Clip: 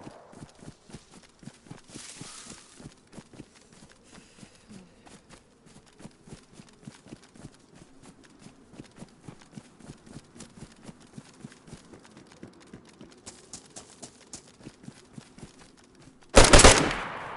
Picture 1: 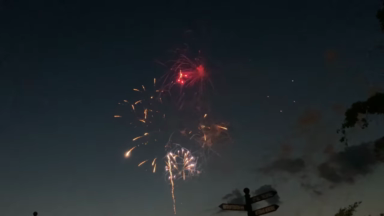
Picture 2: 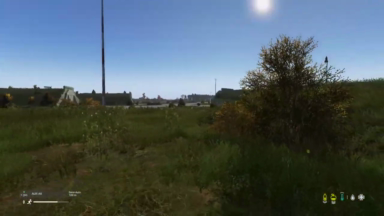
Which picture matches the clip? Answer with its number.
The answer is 2